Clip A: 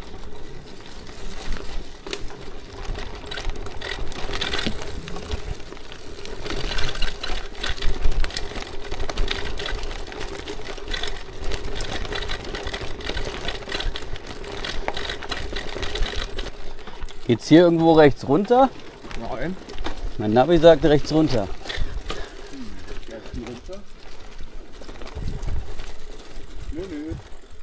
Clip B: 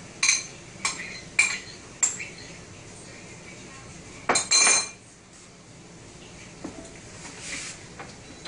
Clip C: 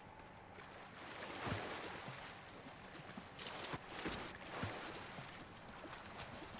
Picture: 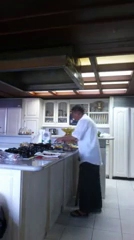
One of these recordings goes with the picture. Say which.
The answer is B